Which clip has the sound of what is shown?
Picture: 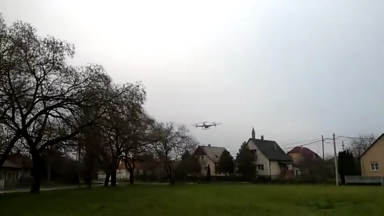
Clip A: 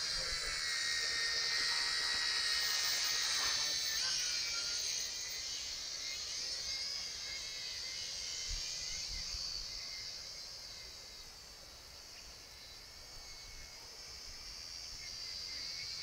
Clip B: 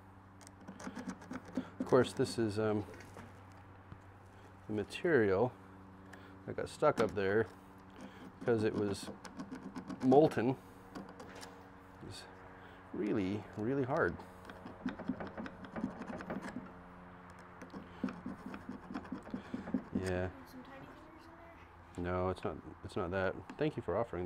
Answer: A